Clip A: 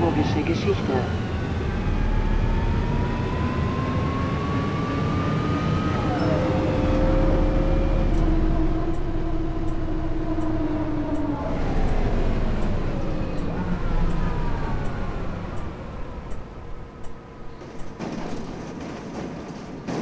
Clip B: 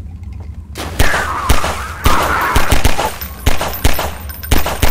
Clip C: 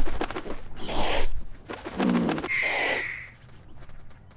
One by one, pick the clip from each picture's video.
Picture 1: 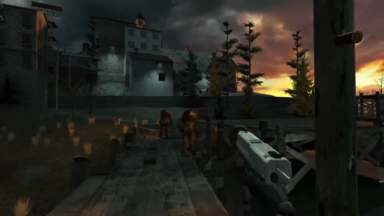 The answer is B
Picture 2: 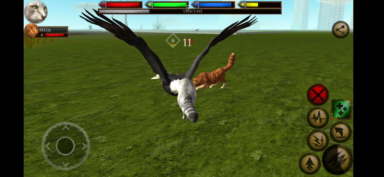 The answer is C